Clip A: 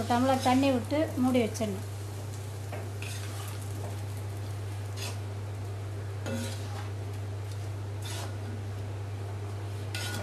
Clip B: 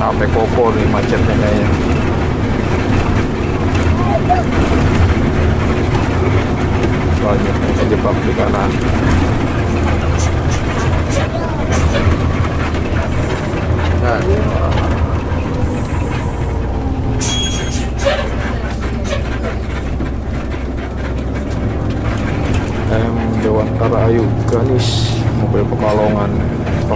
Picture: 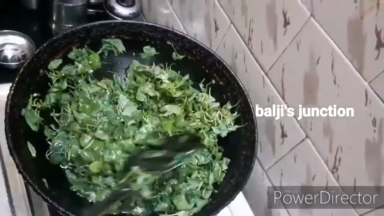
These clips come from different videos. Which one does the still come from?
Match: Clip A